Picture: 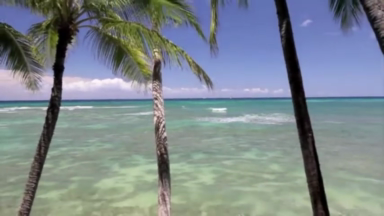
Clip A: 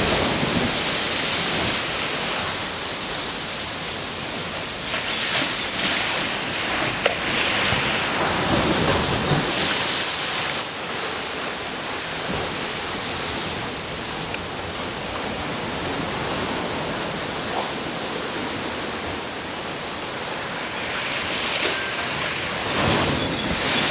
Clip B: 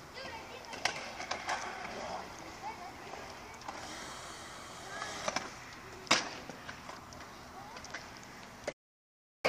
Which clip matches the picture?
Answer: A